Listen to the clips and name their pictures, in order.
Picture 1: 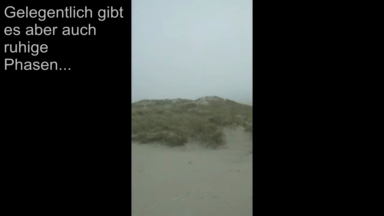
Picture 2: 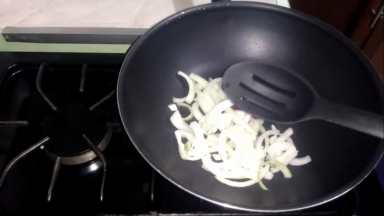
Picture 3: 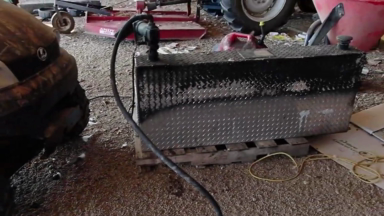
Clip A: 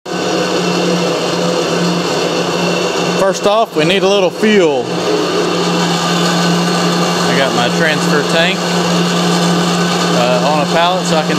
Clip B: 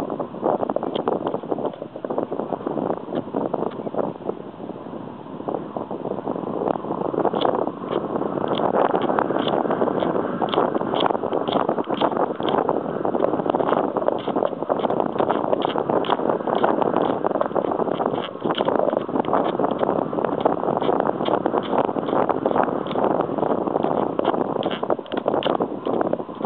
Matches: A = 3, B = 1